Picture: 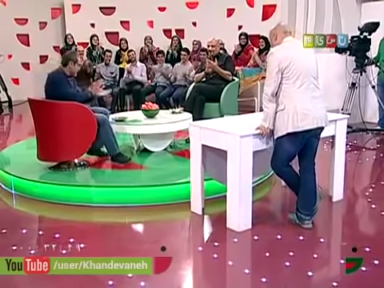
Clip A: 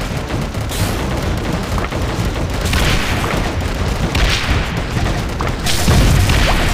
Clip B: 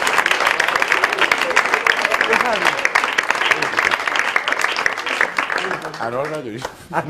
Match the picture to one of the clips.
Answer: B